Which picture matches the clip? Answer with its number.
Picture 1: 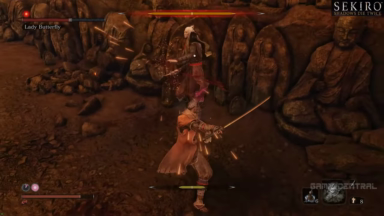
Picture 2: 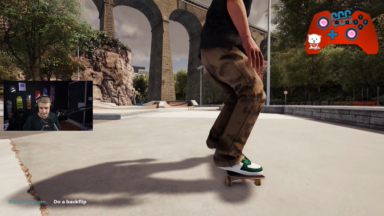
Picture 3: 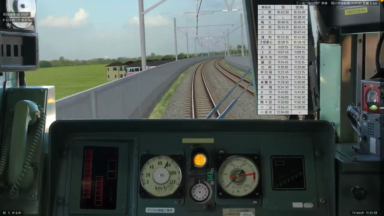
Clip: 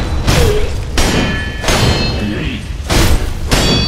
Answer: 1